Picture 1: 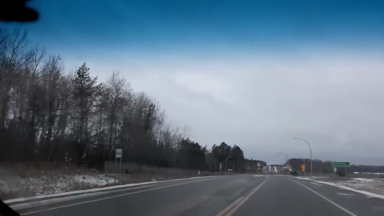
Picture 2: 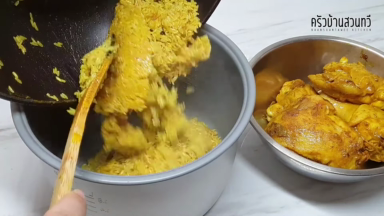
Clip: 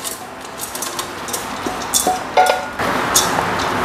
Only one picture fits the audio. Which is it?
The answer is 2